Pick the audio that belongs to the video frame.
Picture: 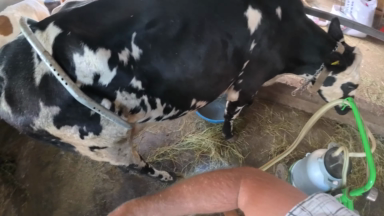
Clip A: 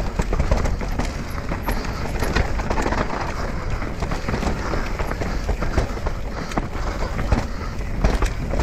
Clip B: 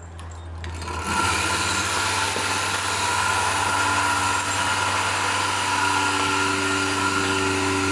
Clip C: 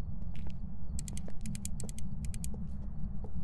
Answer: B